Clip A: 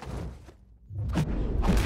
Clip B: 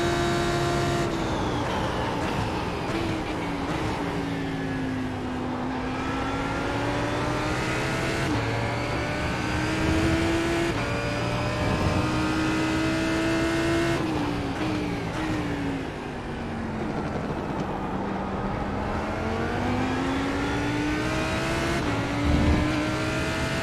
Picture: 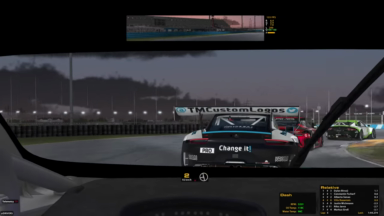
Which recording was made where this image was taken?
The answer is B